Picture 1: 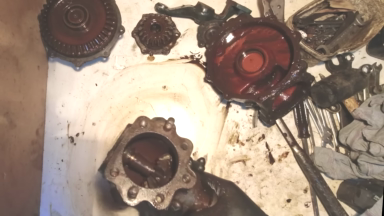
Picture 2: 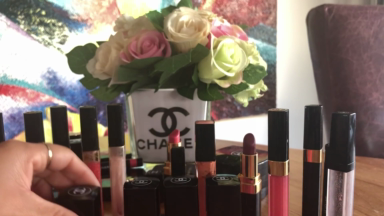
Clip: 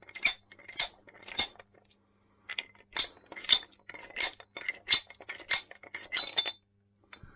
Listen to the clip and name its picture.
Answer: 1